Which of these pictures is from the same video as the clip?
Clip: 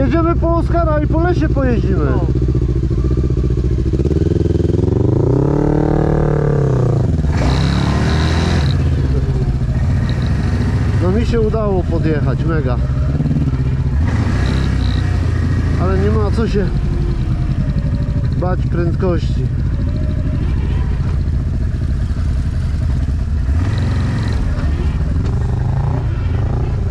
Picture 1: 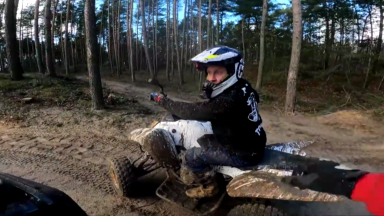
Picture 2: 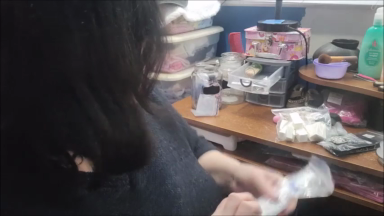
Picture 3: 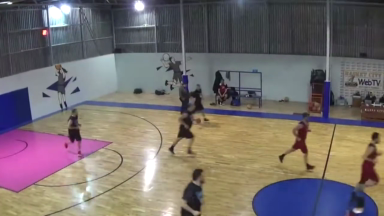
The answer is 1